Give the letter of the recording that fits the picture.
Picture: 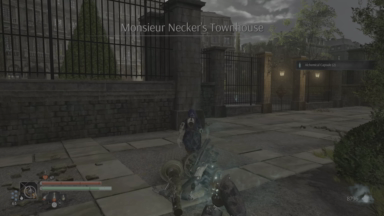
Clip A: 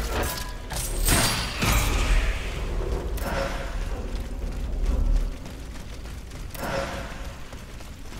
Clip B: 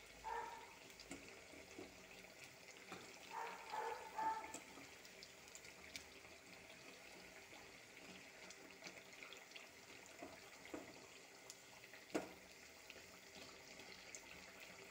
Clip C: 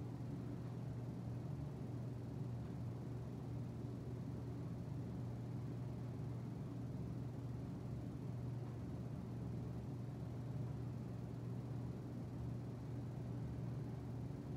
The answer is A